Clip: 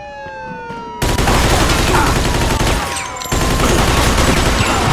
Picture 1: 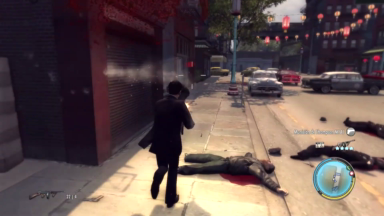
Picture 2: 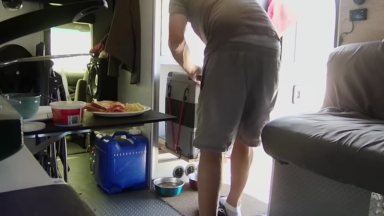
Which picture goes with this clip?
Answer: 1